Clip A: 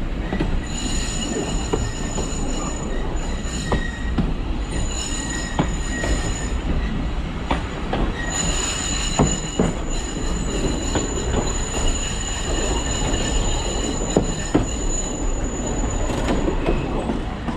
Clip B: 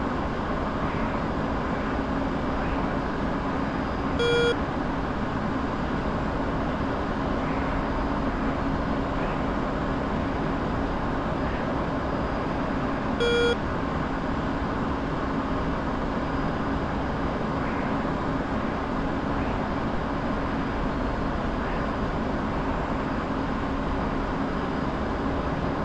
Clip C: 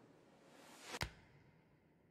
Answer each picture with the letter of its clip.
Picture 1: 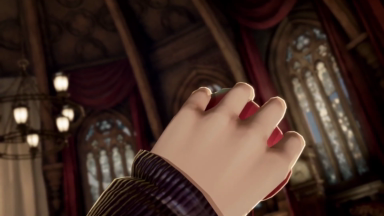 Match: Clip C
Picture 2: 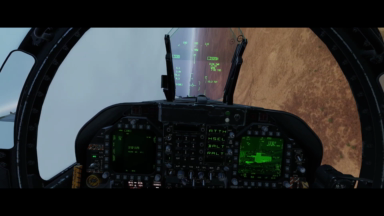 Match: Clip B